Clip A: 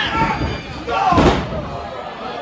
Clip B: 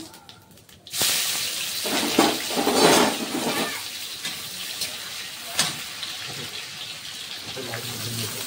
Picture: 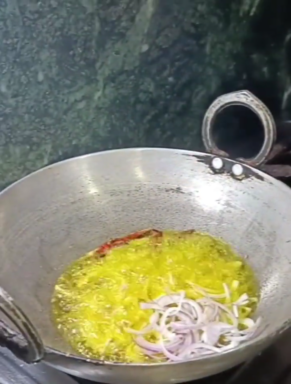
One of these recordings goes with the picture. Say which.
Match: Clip B